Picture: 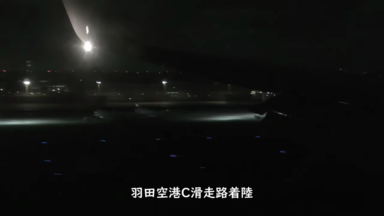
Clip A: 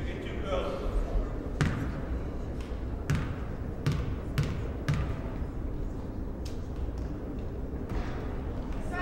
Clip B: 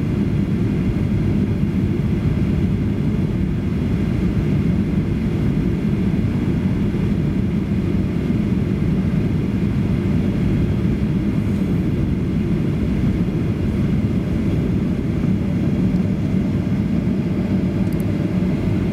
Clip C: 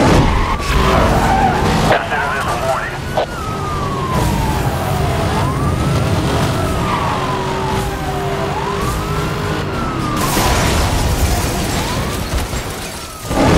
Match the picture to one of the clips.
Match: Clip B